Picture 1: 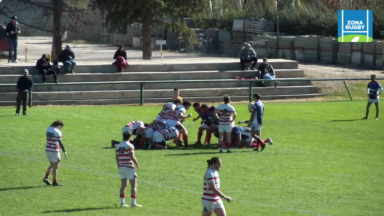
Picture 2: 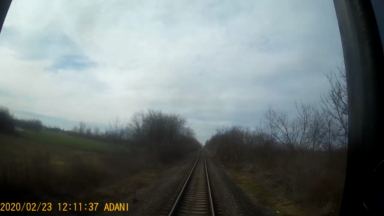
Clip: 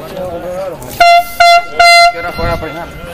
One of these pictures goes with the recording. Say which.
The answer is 1